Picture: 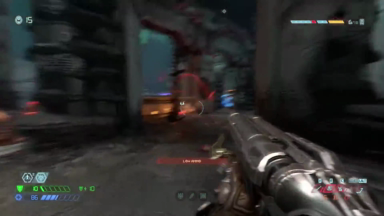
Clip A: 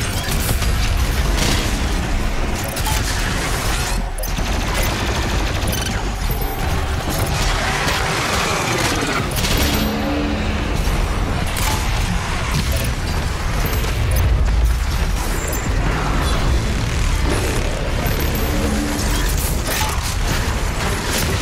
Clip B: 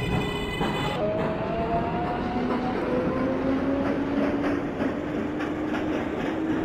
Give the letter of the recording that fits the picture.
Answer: A